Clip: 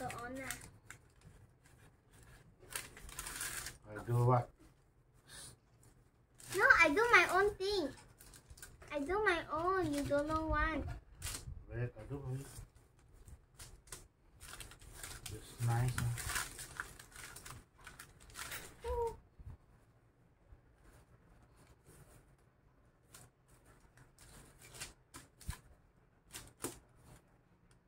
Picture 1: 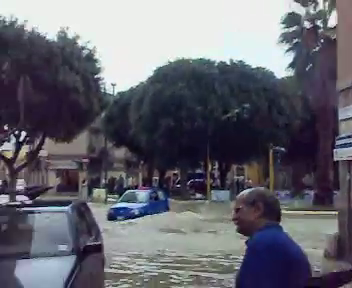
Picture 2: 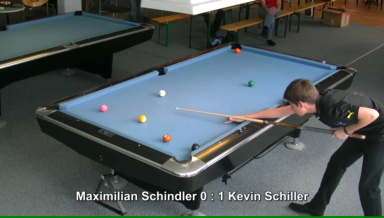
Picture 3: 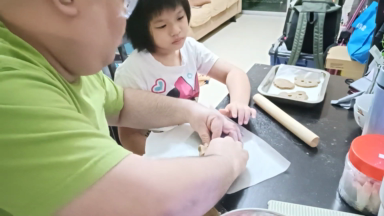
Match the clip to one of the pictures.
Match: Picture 3